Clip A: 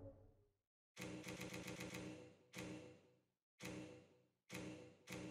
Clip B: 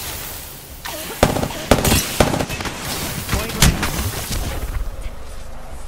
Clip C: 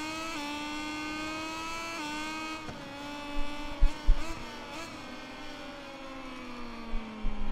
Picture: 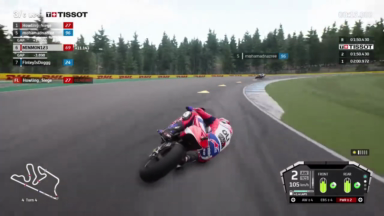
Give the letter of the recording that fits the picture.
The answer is C